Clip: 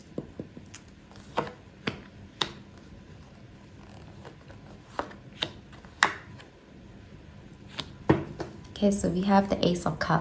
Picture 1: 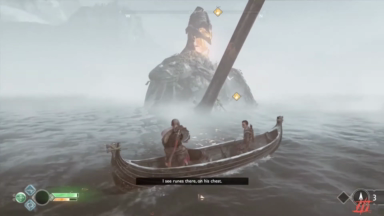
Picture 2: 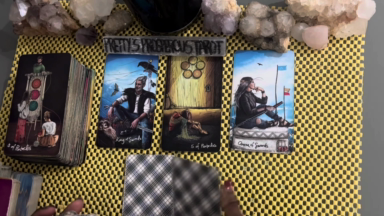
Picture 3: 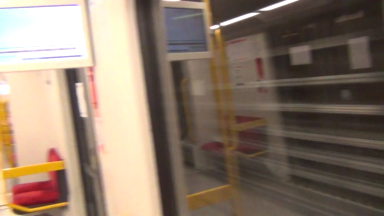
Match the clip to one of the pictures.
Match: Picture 2